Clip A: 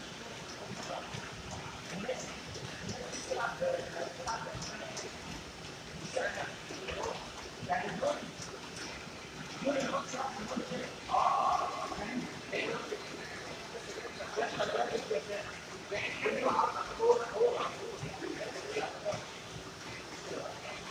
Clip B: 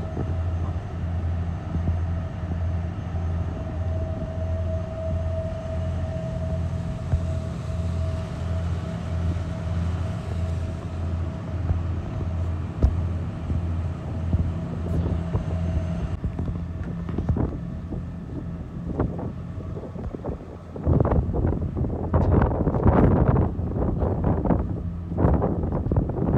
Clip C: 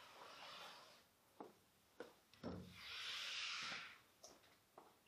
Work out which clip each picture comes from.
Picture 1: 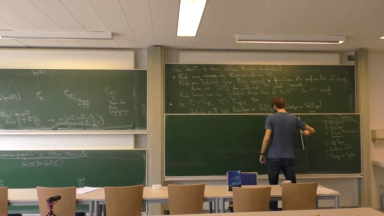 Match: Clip C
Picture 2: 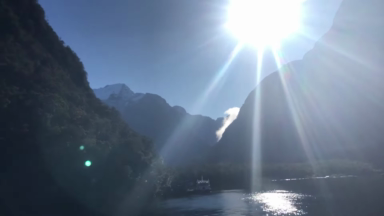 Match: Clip B